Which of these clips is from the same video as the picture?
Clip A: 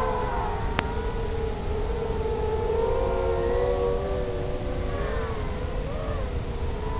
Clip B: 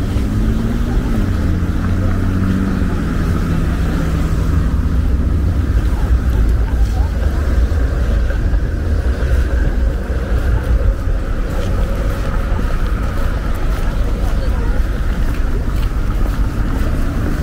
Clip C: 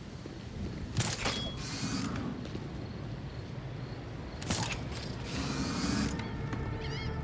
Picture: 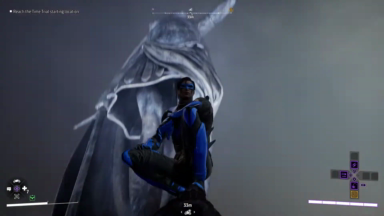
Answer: C